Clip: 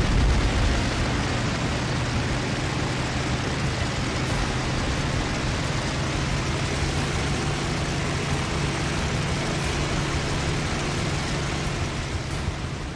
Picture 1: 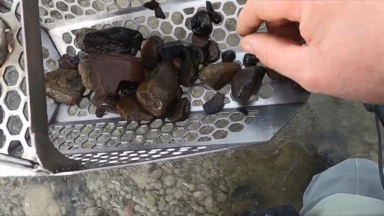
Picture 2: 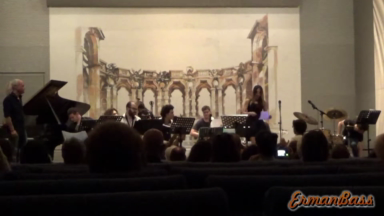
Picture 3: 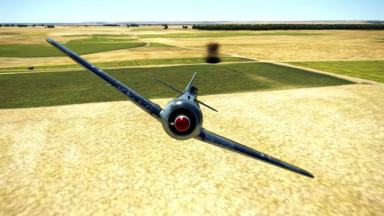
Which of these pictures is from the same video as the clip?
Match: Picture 3